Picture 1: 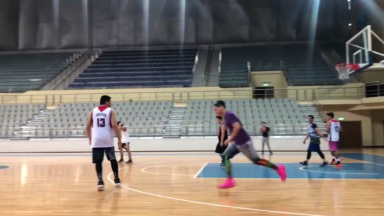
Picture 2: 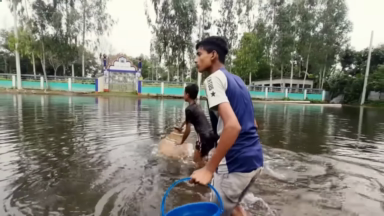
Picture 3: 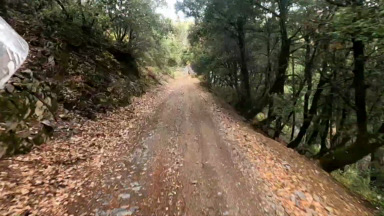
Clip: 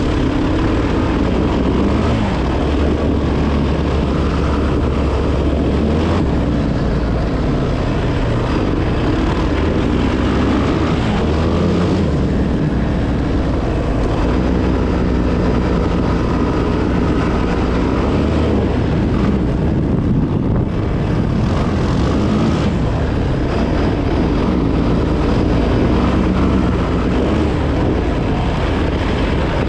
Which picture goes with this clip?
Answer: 3